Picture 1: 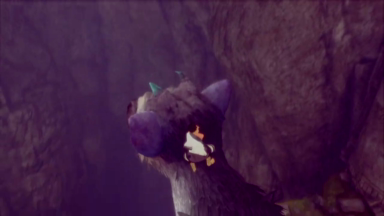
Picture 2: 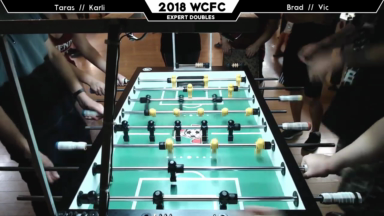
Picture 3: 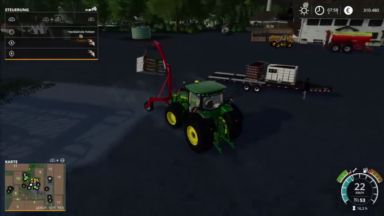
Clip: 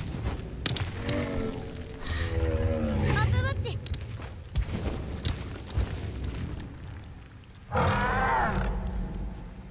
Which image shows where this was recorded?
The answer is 1